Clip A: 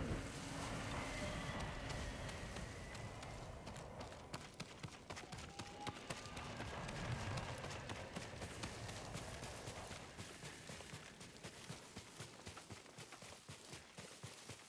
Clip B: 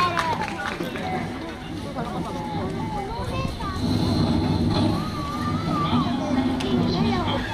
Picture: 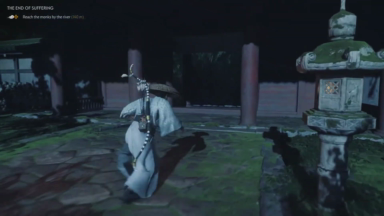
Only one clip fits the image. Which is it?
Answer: A